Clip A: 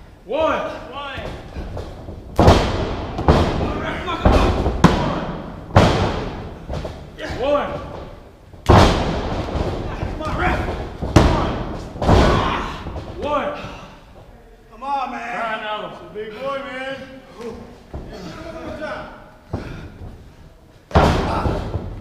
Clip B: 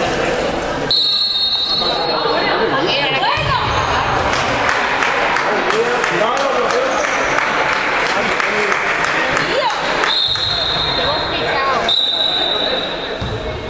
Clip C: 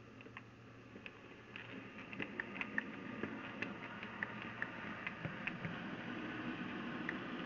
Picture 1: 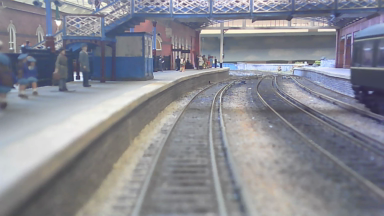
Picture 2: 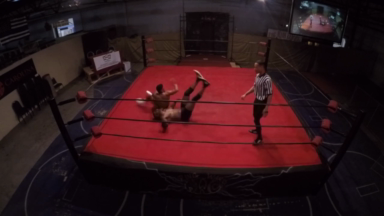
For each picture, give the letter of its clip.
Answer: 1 C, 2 A